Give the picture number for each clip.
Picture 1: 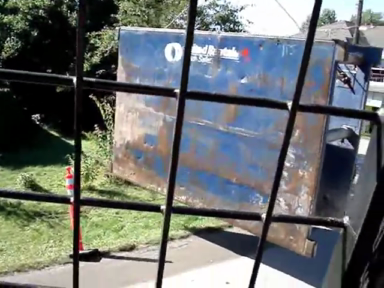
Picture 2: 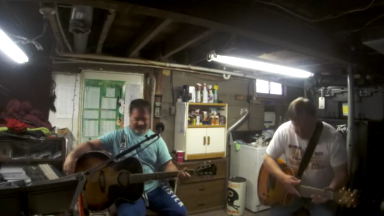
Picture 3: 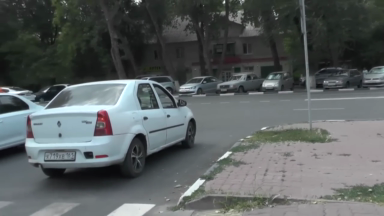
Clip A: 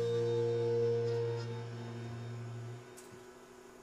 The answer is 2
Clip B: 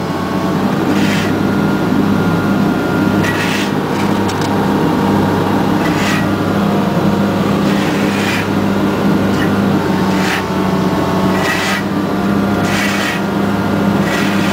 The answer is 1